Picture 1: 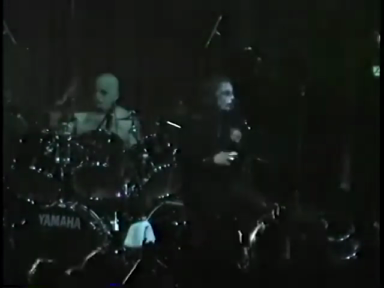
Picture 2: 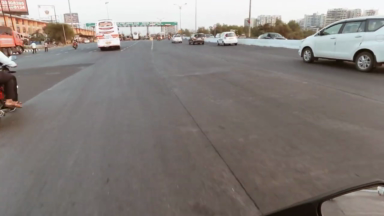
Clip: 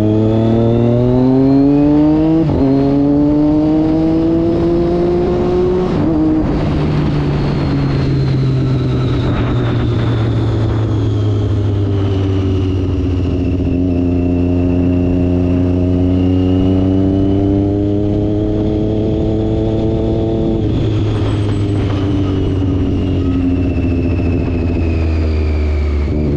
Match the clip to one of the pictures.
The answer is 2